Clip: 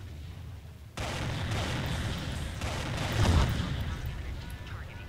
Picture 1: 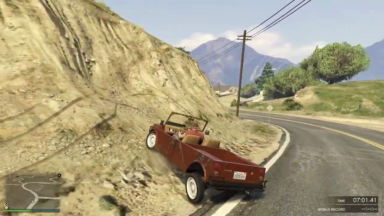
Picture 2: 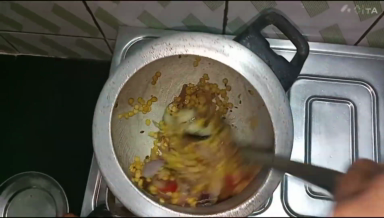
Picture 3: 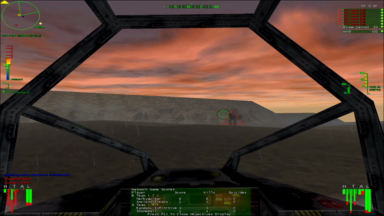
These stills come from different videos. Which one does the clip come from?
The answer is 3